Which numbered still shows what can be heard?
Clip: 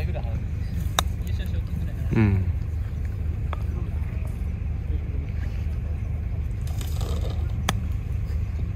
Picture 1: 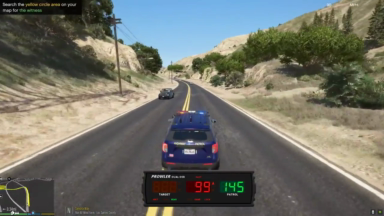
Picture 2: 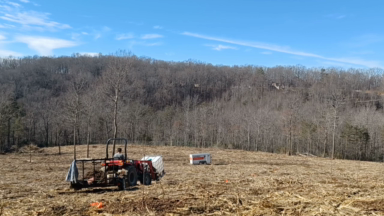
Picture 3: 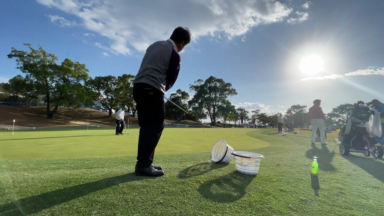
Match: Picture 3